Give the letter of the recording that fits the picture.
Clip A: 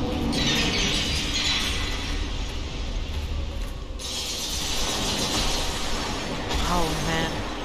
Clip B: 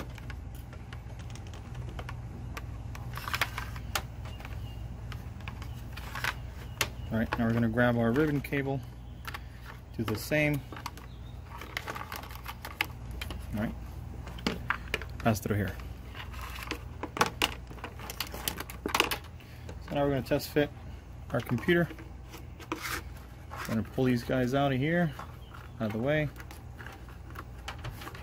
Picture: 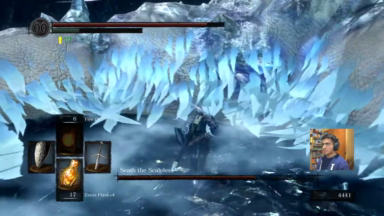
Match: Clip A